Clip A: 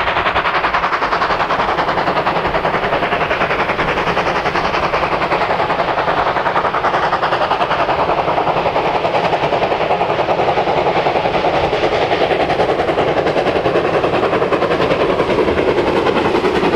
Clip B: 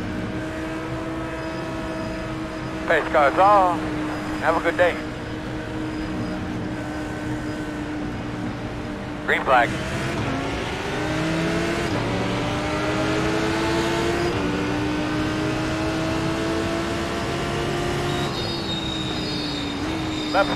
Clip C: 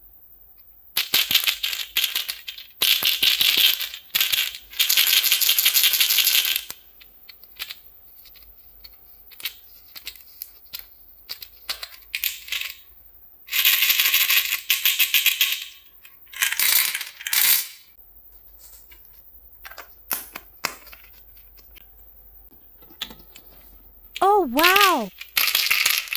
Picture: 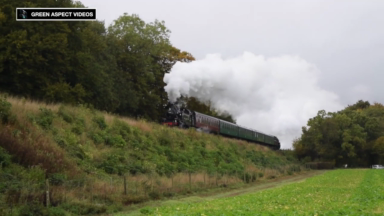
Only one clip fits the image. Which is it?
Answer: A